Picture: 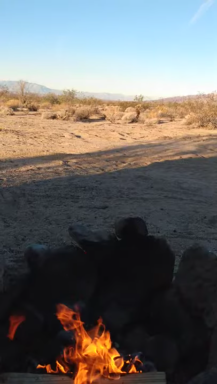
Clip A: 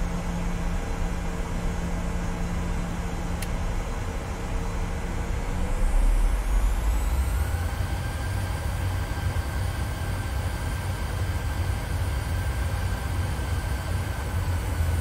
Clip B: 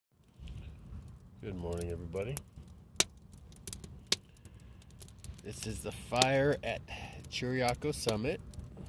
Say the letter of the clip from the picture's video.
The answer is B